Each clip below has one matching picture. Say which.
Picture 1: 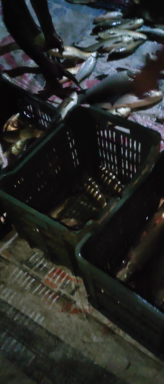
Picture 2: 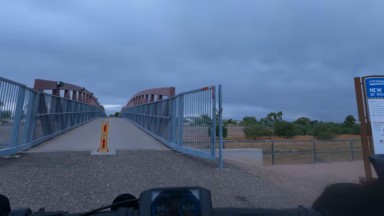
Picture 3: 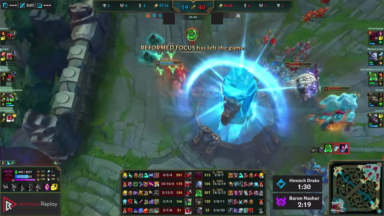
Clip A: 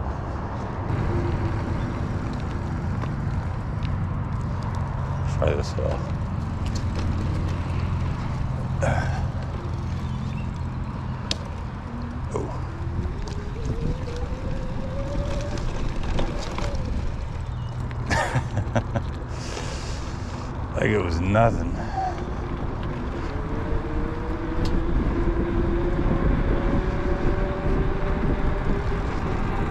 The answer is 2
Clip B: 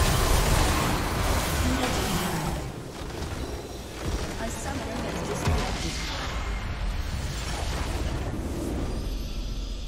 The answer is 3